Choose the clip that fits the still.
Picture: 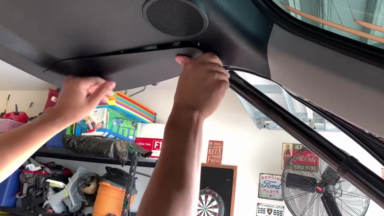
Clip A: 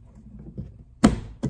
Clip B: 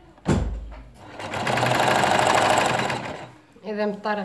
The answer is A